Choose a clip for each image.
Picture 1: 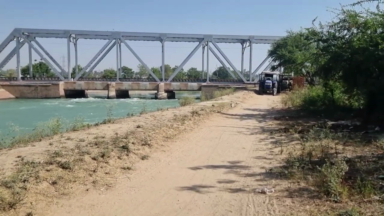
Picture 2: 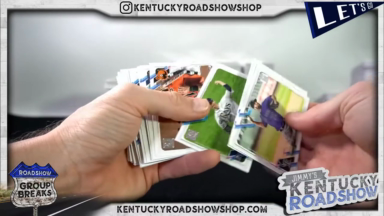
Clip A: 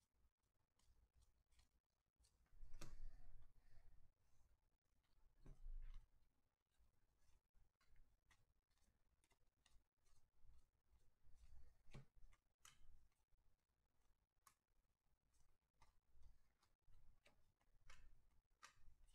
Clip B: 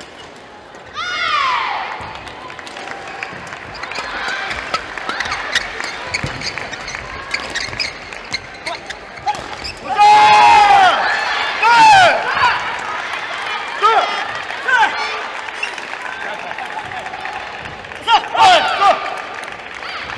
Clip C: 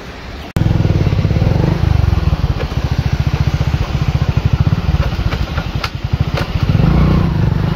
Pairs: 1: C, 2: A